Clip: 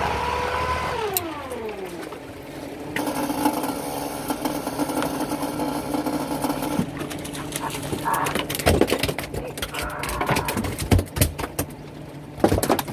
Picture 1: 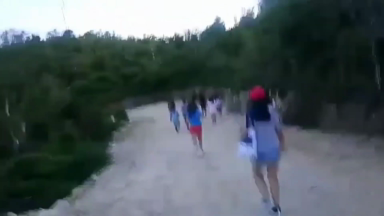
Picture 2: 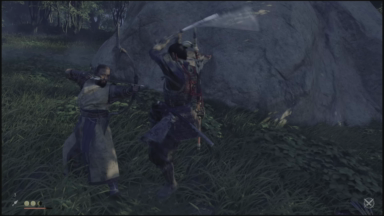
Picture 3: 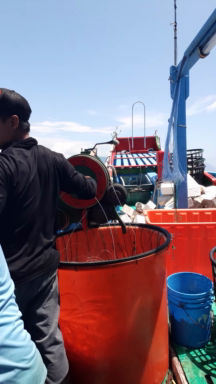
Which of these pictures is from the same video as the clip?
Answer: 3